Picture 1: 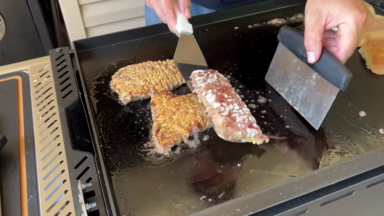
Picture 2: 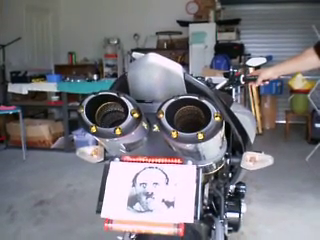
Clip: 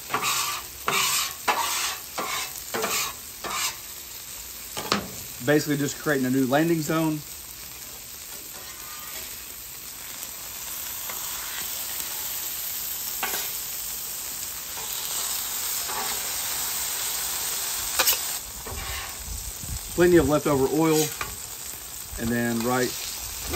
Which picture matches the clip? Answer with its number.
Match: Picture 1